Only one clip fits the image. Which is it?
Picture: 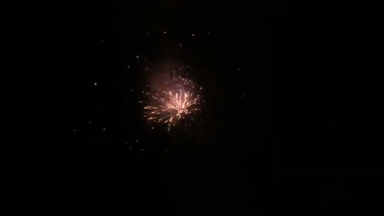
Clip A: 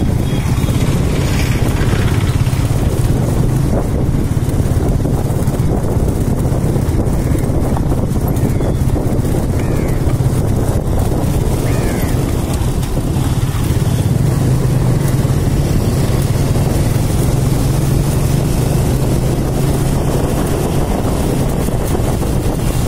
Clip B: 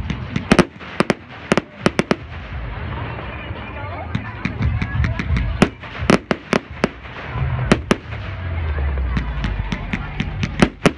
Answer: B